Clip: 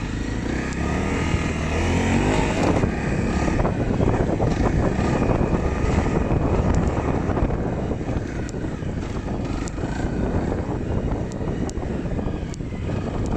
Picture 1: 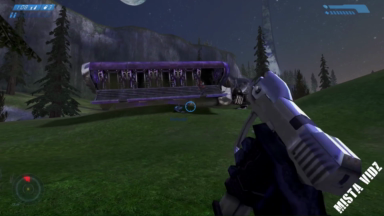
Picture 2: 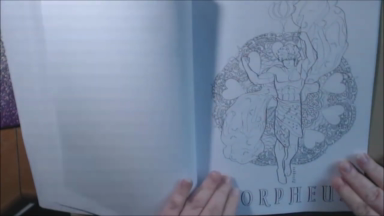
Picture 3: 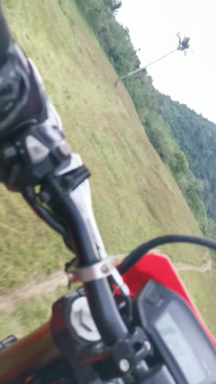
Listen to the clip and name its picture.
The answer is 3